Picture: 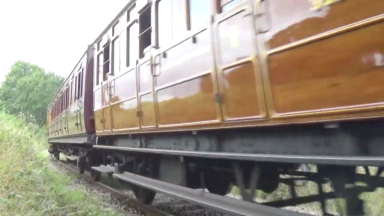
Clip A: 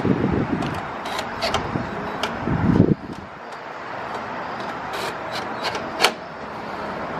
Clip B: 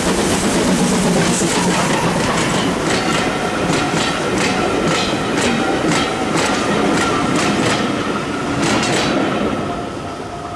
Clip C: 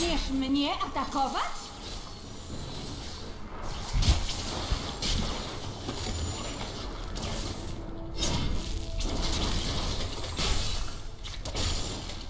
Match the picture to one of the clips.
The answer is B